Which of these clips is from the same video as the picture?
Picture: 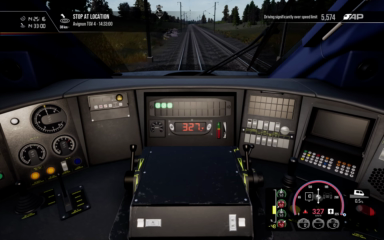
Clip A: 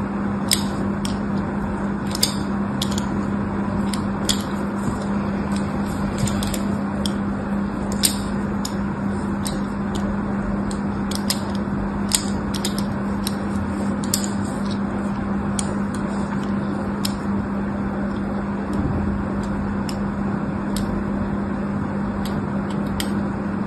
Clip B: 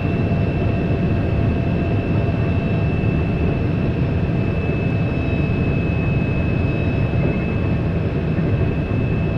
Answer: B